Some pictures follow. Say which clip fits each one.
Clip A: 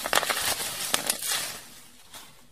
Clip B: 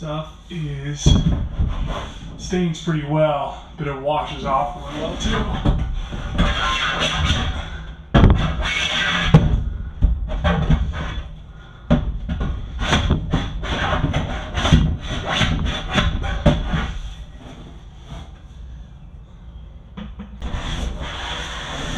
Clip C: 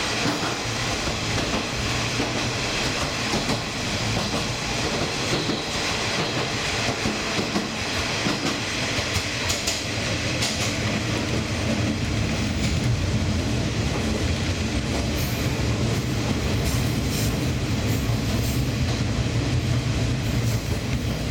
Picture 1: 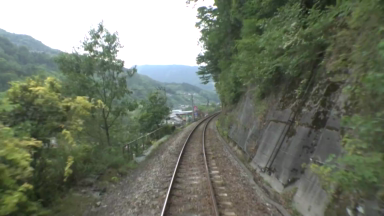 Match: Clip C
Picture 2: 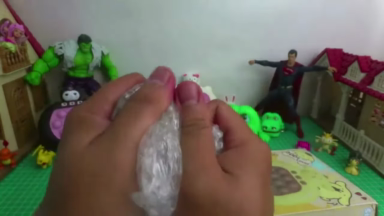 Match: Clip A